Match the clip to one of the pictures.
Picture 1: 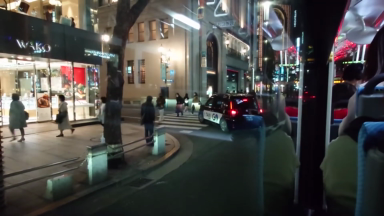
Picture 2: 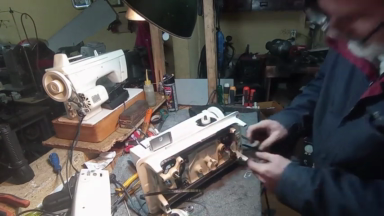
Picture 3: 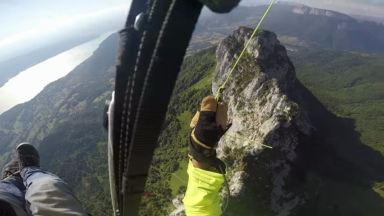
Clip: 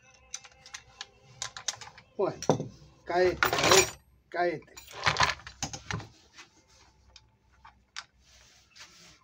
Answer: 2